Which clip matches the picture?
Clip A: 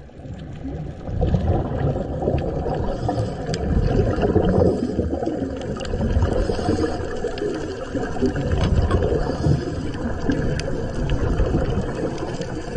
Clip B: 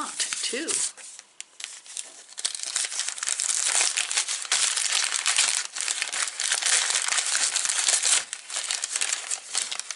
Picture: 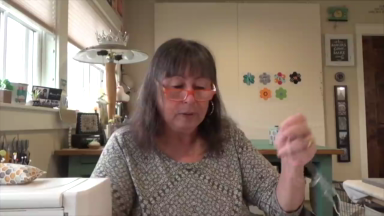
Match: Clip B